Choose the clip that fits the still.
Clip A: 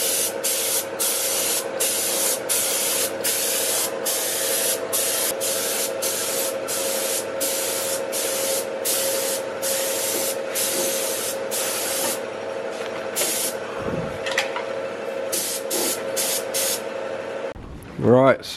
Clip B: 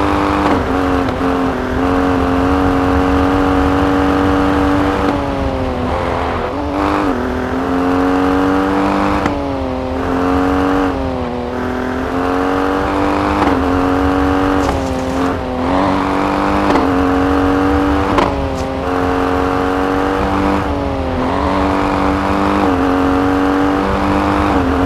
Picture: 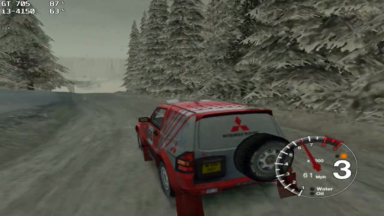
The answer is B